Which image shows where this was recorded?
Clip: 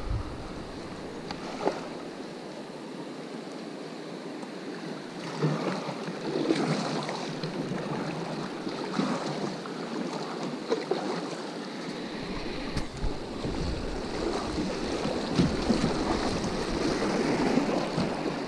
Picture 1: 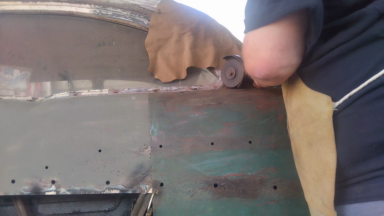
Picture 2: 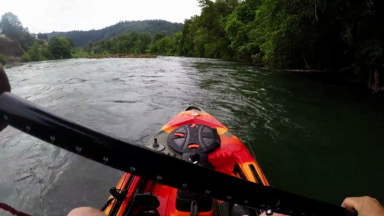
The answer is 2